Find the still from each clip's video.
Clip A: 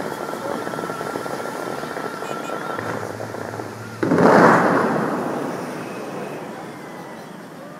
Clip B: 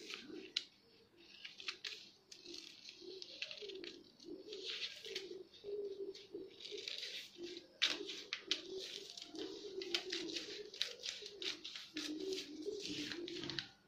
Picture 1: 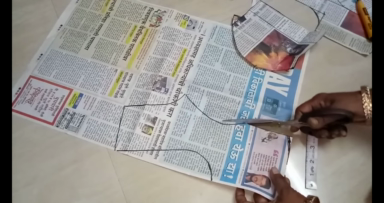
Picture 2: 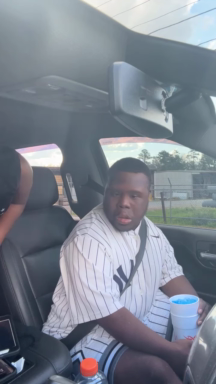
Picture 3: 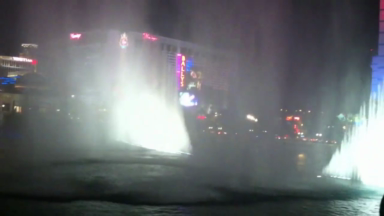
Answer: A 3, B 1